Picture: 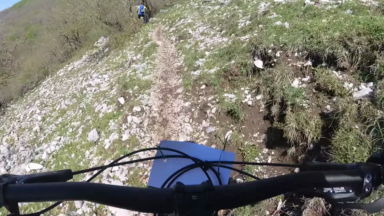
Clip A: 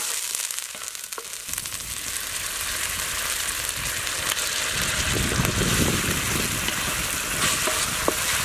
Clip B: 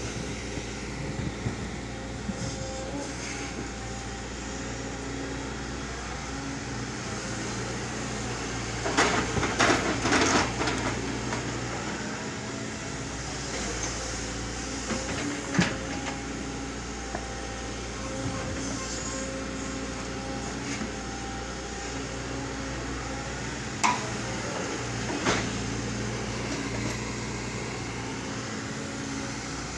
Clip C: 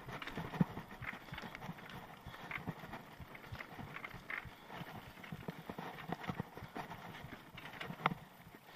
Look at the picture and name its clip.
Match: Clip C